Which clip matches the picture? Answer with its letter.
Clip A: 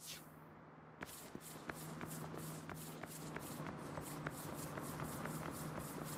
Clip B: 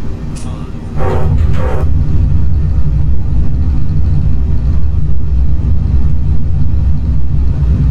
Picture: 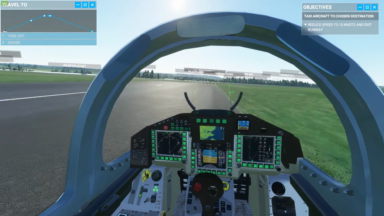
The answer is B